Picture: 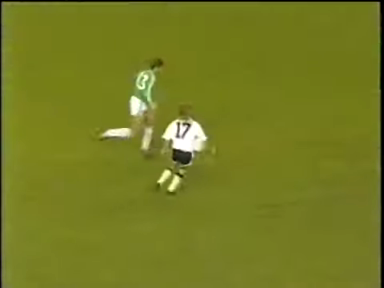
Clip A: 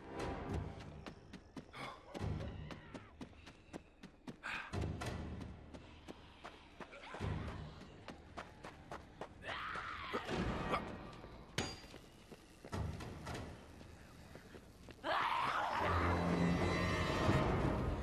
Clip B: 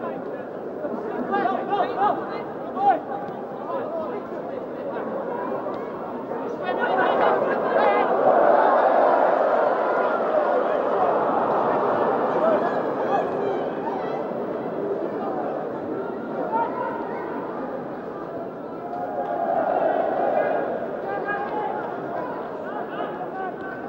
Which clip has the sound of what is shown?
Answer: B